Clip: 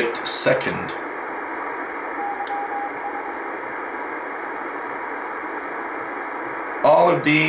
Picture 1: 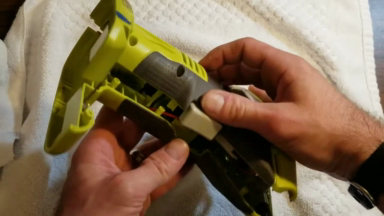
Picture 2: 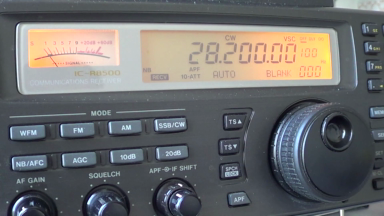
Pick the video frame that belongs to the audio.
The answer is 2